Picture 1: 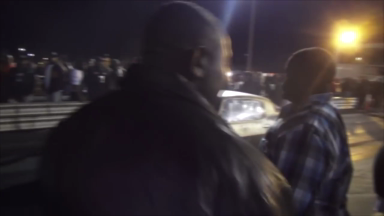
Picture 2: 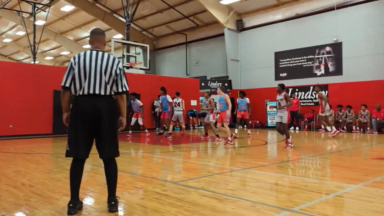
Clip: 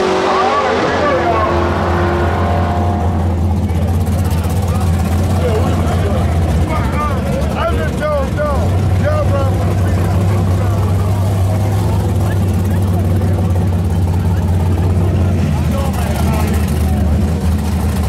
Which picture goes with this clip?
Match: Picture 1